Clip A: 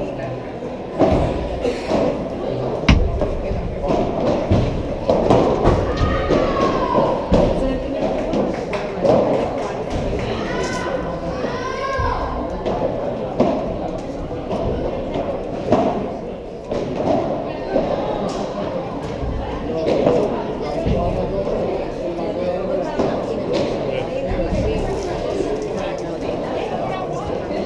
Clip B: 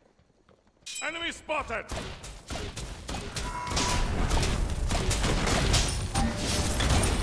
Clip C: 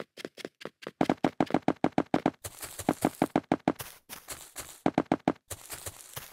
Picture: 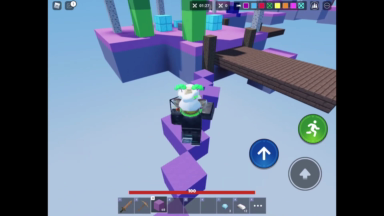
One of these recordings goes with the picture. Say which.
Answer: C